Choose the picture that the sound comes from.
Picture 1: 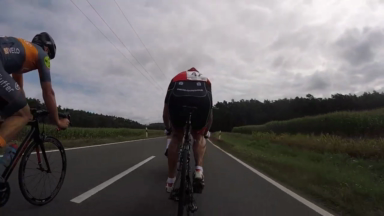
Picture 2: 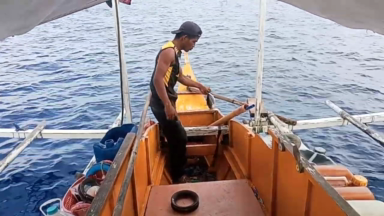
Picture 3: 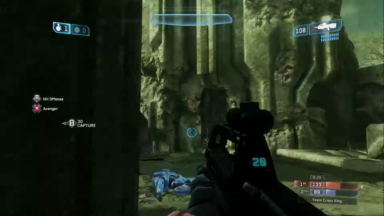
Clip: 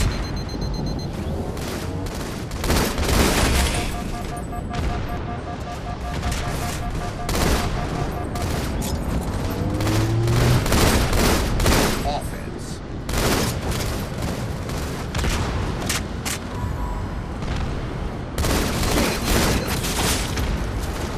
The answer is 3